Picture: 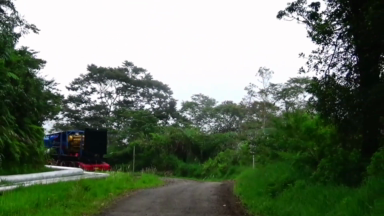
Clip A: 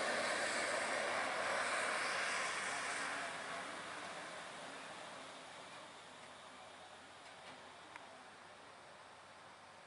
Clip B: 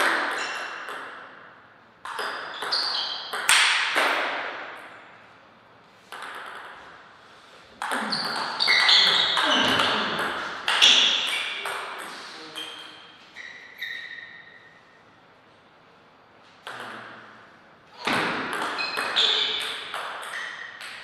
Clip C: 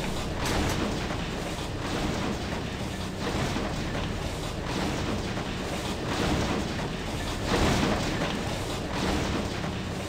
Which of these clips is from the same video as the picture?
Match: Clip A